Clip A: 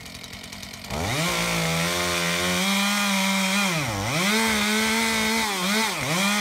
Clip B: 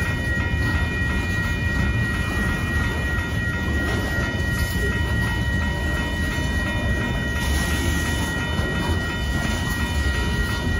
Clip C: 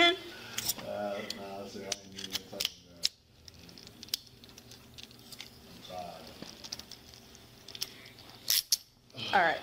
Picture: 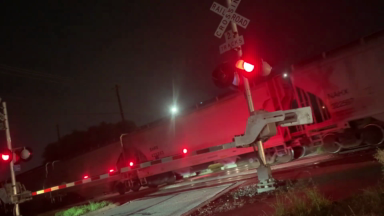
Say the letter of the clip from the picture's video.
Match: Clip B